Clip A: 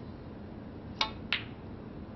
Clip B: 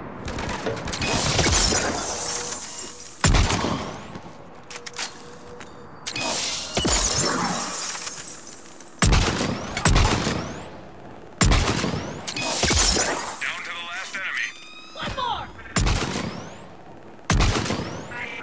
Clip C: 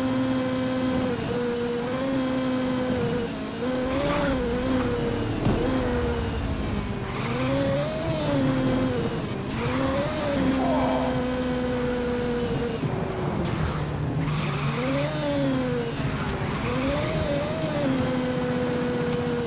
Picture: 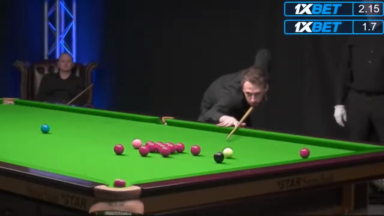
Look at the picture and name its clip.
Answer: A